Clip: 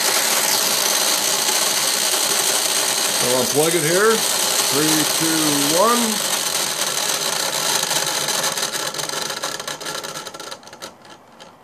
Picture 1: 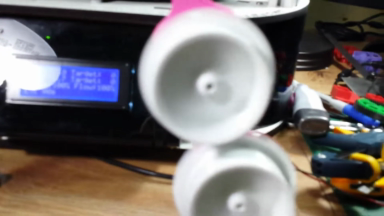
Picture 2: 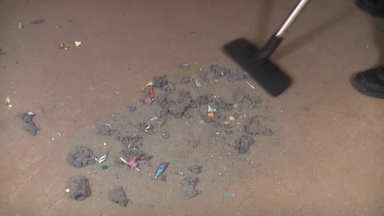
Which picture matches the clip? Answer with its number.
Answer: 1